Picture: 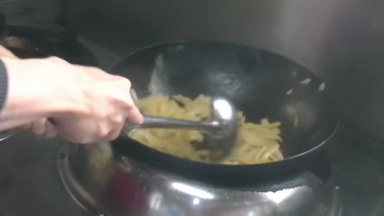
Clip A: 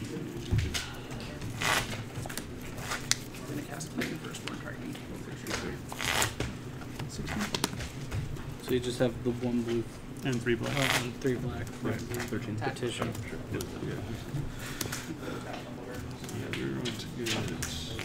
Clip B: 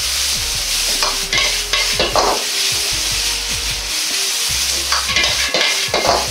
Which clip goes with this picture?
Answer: B